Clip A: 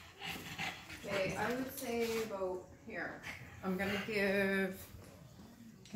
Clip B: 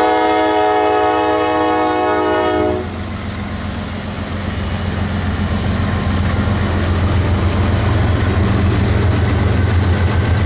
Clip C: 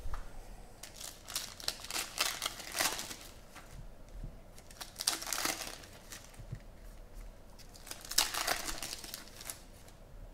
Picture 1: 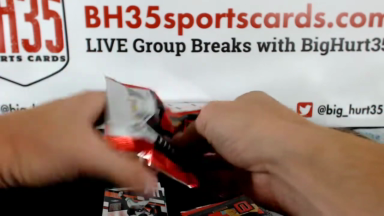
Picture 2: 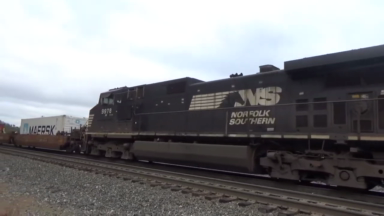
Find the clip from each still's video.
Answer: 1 C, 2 B